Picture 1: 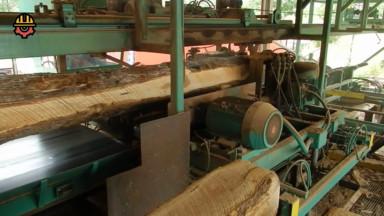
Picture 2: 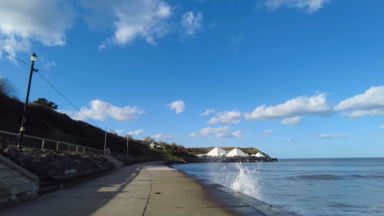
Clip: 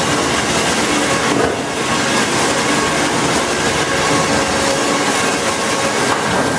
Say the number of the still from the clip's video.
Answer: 1